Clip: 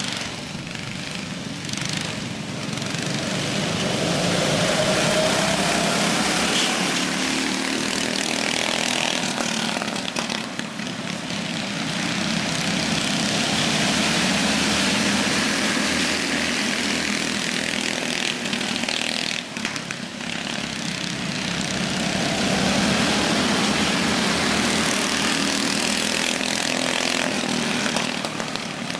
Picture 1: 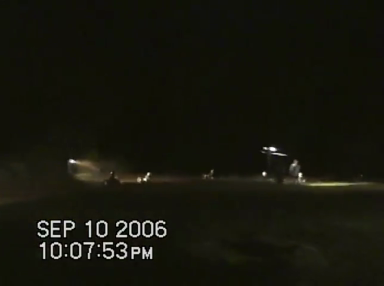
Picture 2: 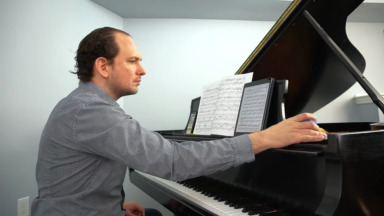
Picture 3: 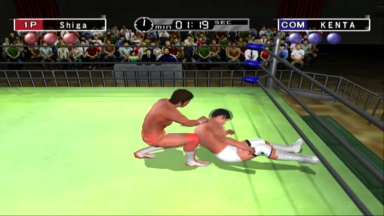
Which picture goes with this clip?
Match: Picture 1